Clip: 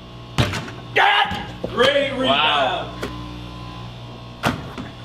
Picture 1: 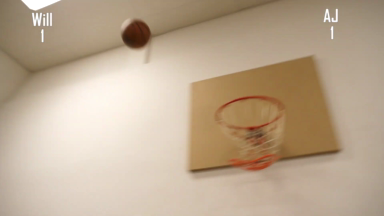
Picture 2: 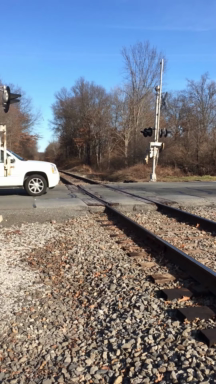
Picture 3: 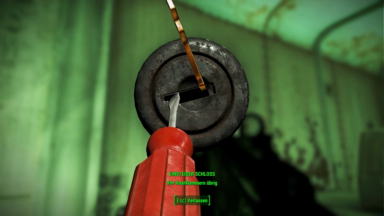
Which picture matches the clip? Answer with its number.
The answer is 1